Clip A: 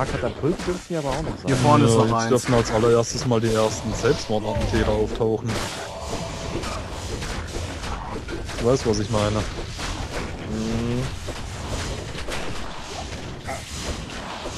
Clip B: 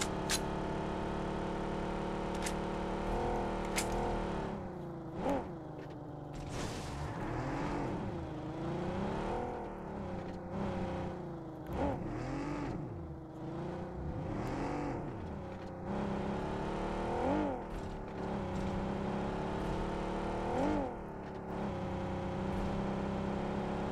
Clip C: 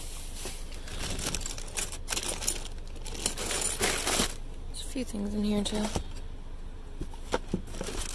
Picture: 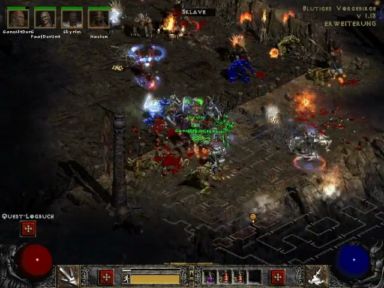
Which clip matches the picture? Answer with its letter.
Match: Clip A